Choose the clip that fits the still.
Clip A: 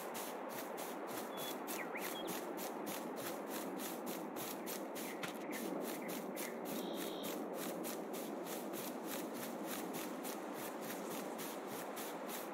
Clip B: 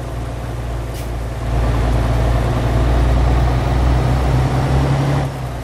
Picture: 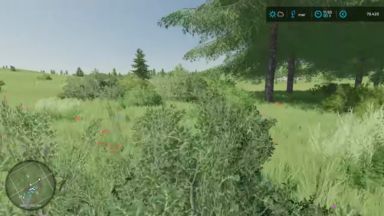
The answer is A